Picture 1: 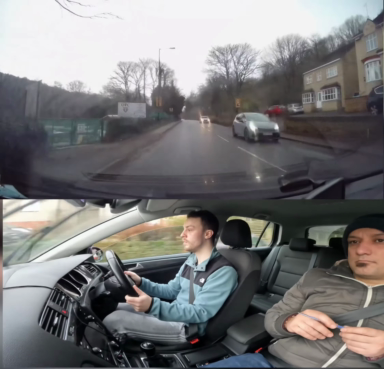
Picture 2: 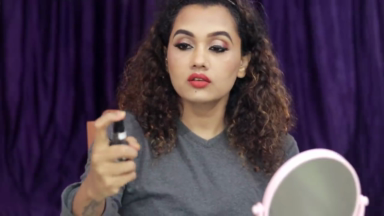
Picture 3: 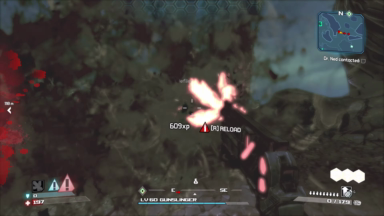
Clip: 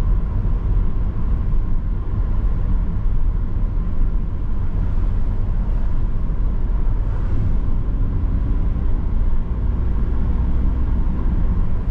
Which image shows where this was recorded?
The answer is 1